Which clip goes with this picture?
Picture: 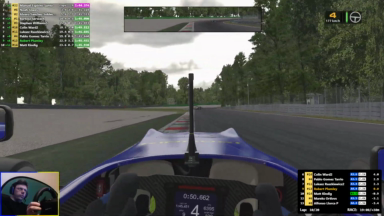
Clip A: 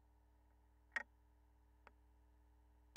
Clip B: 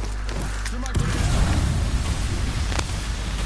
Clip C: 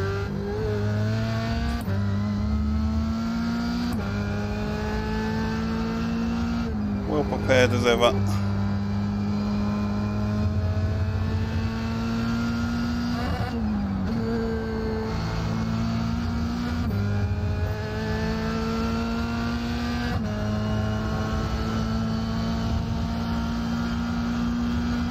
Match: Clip C